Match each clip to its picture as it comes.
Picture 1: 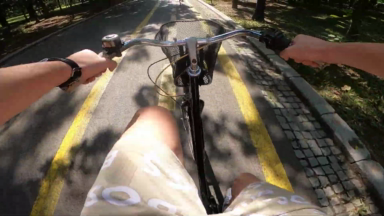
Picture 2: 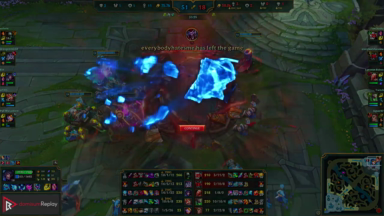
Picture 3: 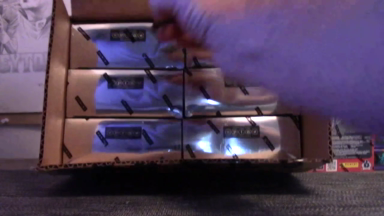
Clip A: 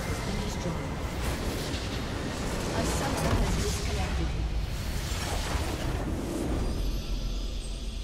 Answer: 2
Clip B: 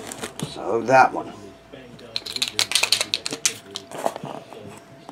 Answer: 3